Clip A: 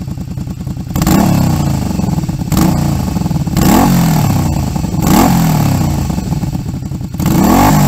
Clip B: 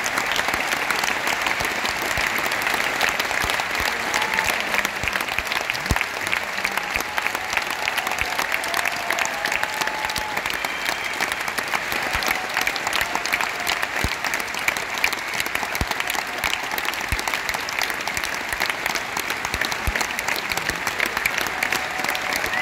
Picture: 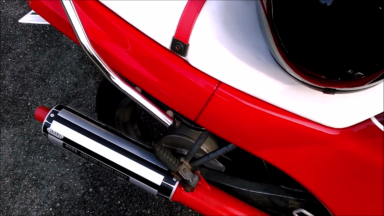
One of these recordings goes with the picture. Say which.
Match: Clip A